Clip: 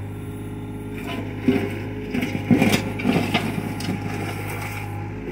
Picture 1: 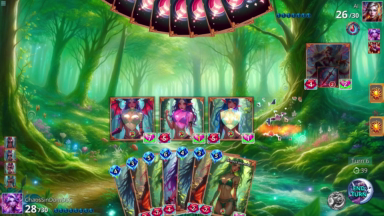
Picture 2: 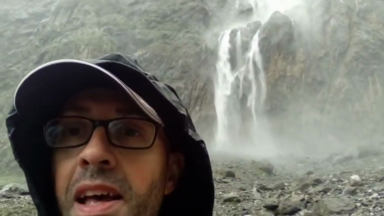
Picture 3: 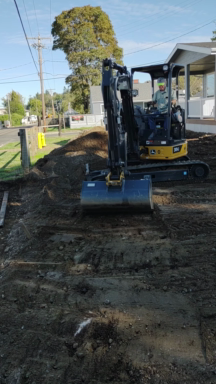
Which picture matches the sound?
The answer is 3